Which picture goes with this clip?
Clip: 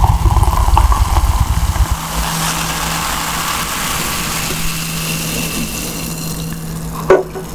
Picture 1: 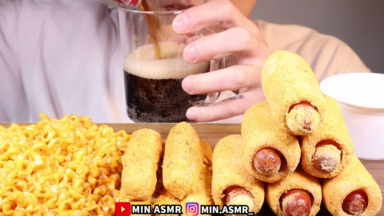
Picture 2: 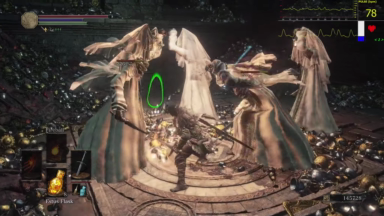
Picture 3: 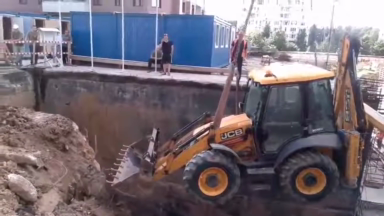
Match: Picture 1